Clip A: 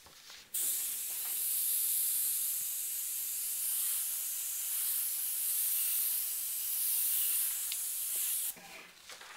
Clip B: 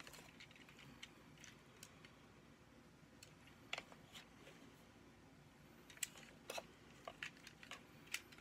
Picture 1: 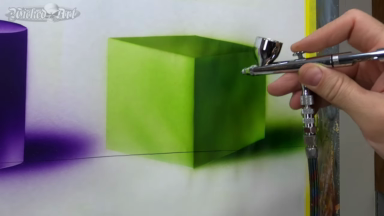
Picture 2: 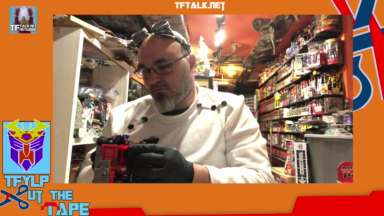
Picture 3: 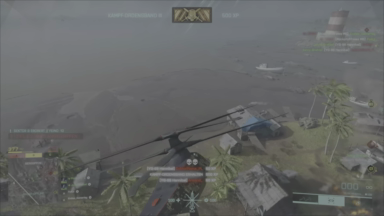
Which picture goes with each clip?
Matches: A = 1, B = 2